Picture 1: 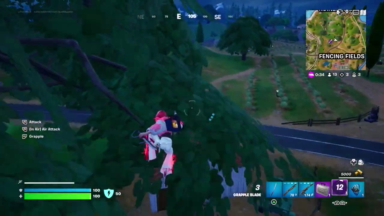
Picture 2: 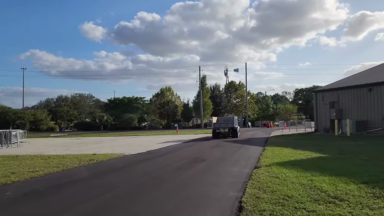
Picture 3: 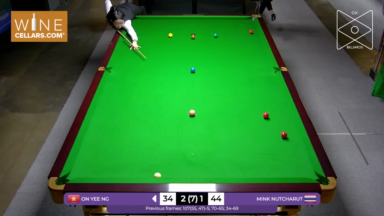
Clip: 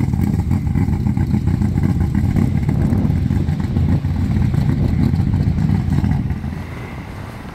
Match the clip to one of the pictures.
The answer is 2